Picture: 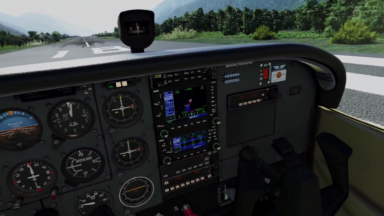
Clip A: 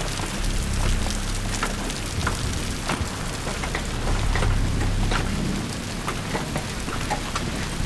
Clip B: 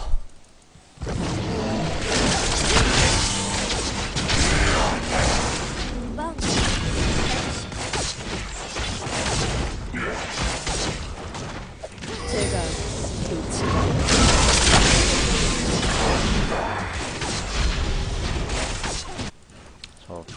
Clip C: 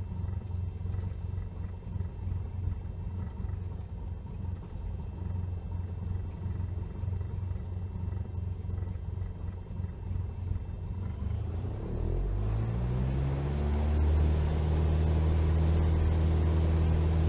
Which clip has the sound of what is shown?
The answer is C